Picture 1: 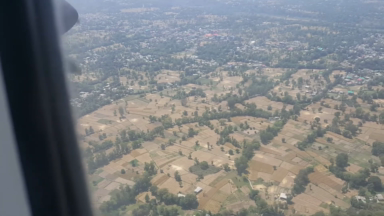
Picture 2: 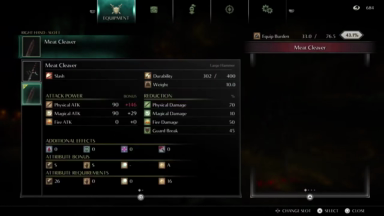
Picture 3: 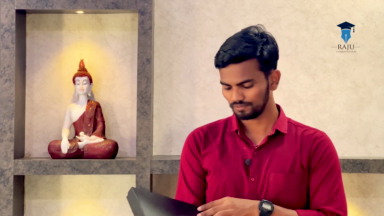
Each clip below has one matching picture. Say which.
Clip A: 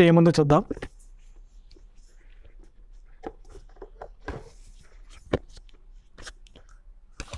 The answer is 3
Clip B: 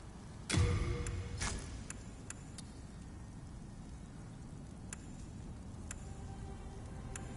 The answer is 2